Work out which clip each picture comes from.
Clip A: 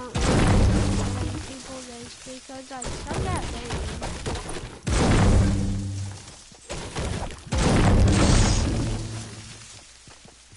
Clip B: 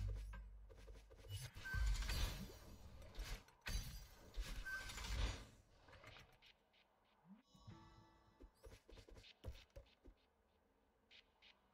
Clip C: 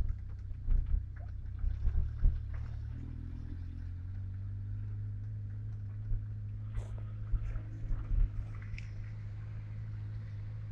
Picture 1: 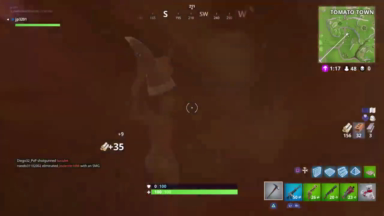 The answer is A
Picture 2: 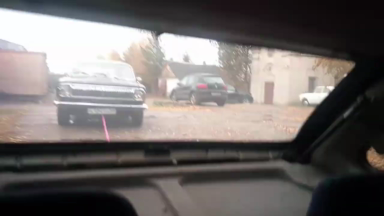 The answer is C